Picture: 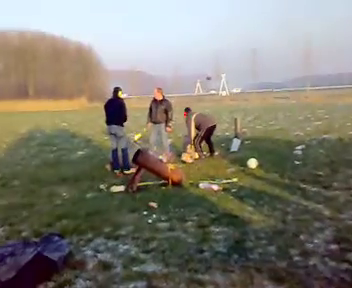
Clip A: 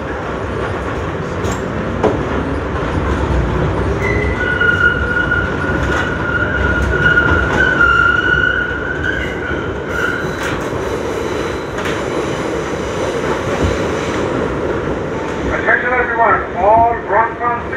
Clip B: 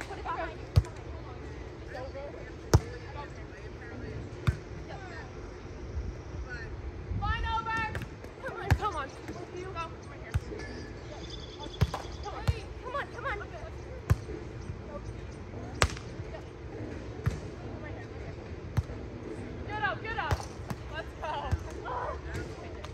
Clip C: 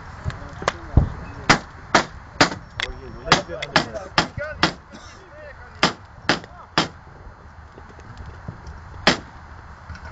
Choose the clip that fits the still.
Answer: C